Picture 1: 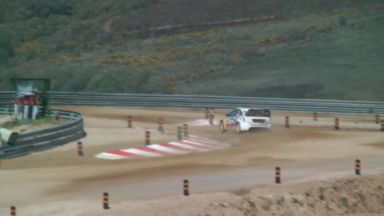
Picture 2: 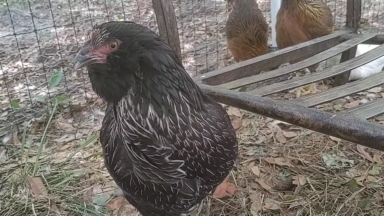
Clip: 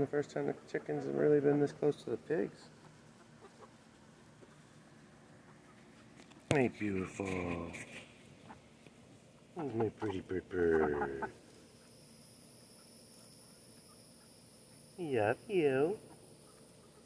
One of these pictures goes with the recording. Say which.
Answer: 2